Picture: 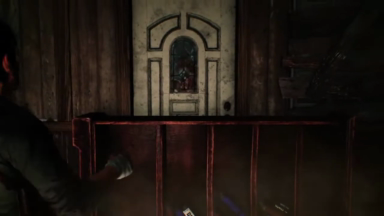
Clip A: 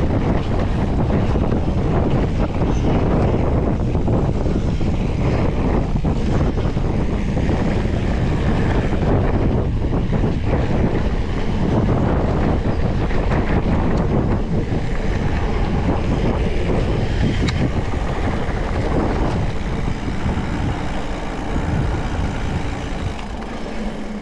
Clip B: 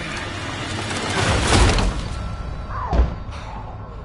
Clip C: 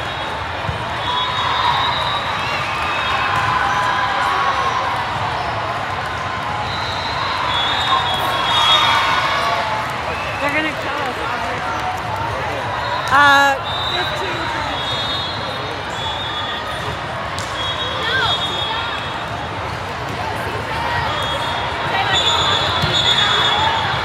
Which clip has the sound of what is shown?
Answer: B